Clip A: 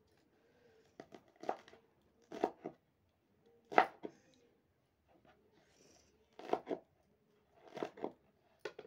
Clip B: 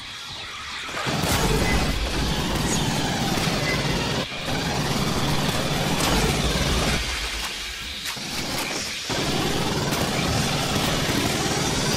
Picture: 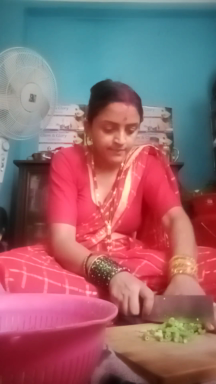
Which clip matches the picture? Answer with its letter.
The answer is A